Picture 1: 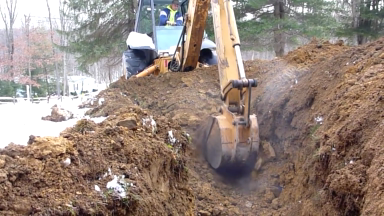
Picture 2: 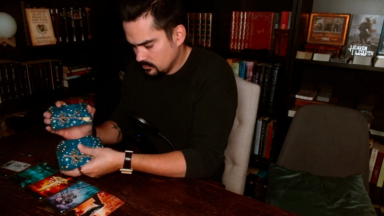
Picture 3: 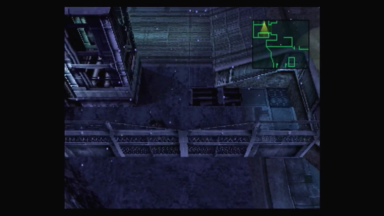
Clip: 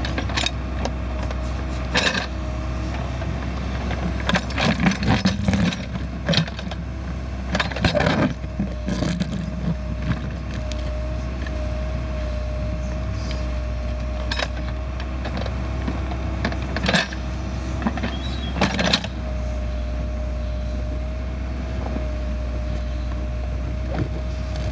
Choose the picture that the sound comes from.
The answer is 1